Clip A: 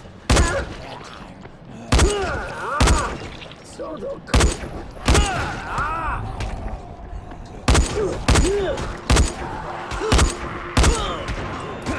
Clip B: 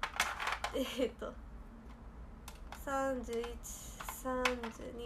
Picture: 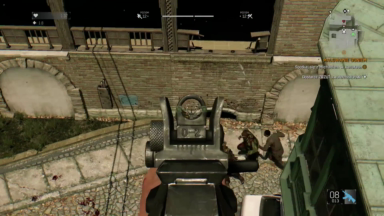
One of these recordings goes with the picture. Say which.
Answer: A